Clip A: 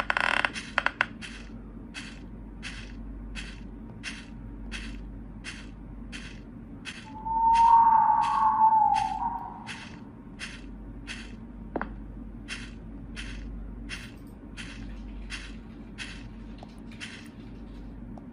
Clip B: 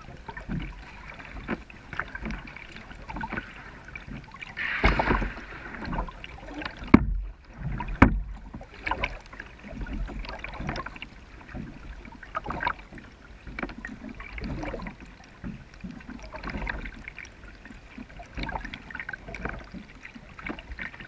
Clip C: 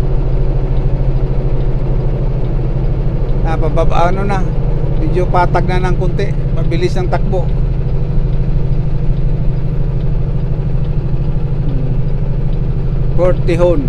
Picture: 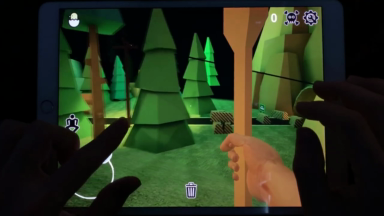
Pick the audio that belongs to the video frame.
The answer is A